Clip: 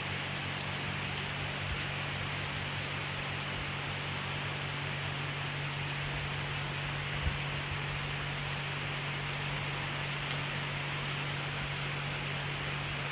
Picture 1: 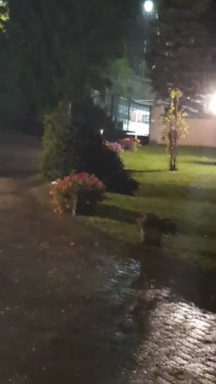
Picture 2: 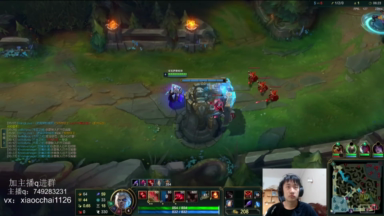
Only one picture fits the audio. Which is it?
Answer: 1